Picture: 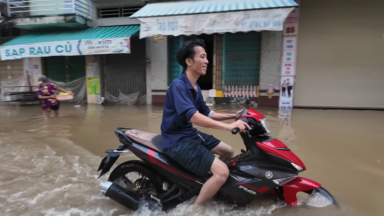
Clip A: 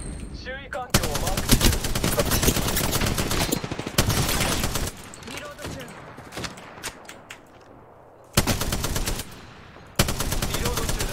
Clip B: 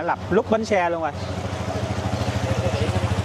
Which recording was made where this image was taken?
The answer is B